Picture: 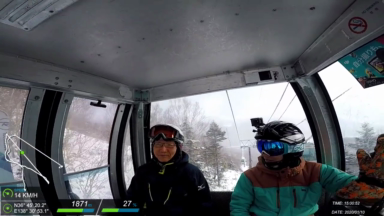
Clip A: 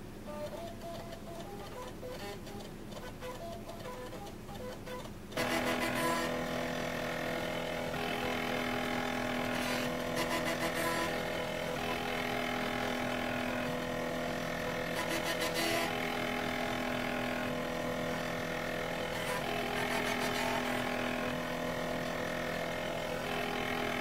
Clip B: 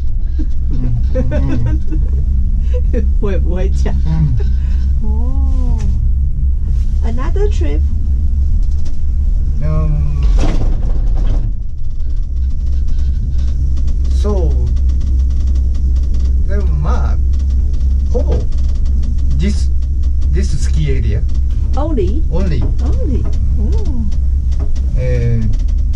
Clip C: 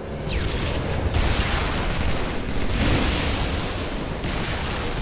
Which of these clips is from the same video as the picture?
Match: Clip B